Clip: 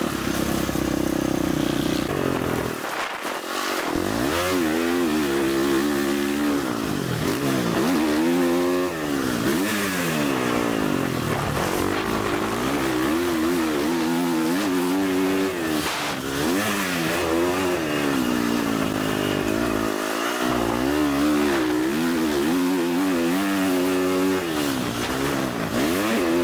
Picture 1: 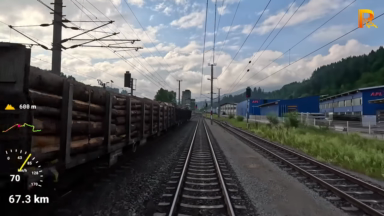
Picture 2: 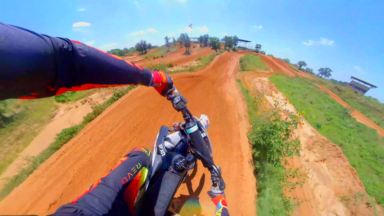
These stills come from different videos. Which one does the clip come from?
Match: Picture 2